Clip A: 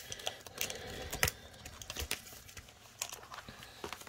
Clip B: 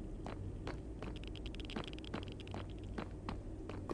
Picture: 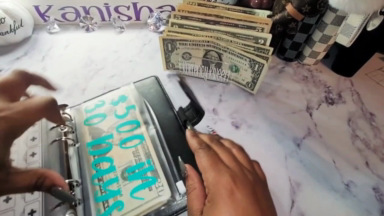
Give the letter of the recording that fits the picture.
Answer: A